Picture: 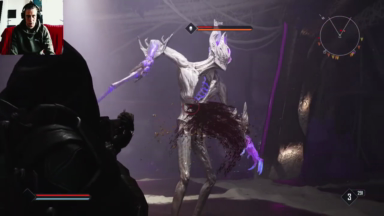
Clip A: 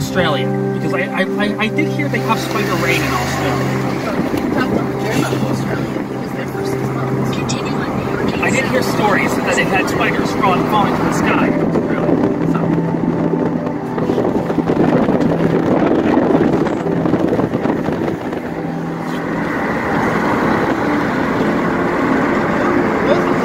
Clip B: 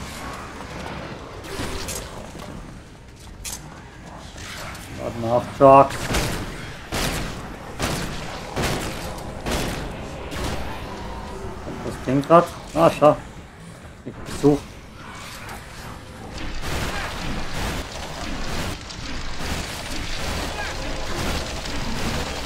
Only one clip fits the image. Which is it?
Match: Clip B